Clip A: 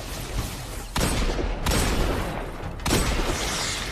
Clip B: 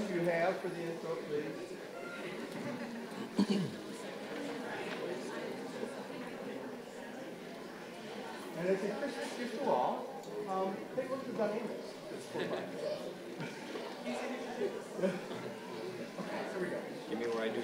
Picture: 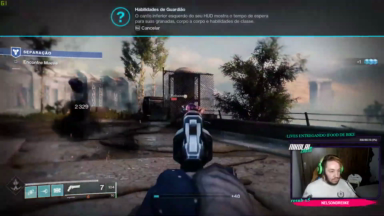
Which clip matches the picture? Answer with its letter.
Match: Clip A